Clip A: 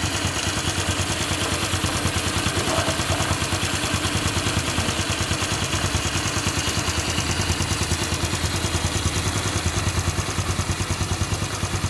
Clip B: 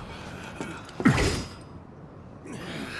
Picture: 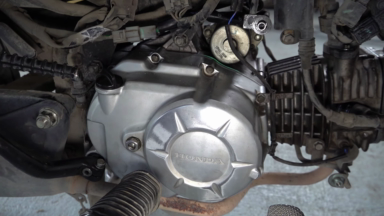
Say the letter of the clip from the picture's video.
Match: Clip A